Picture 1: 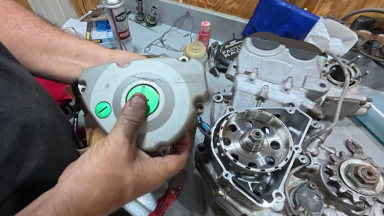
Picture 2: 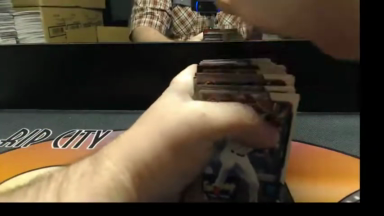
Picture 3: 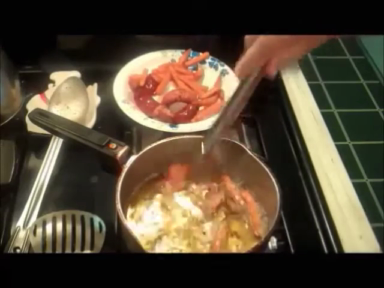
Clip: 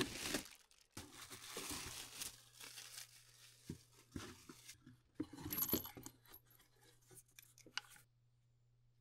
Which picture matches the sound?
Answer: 1